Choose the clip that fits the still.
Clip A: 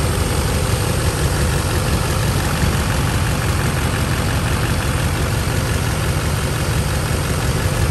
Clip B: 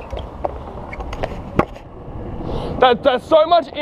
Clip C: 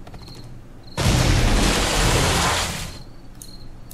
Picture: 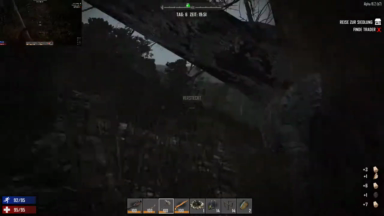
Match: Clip C